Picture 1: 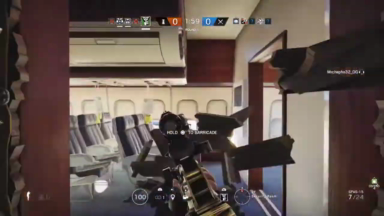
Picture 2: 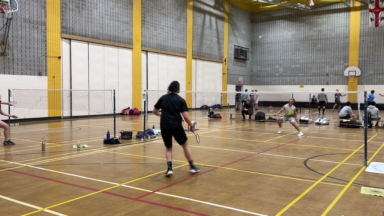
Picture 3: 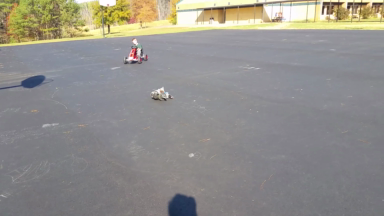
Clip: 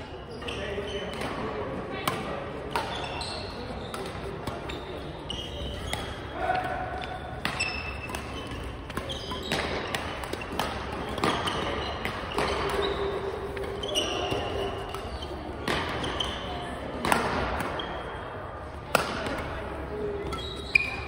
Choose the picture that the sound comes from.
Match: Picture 2